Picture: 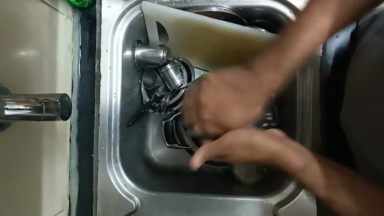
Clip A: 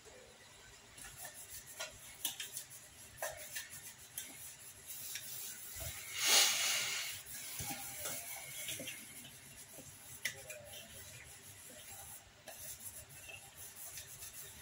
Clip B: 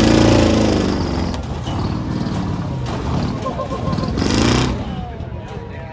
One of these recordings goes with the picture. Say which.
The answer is A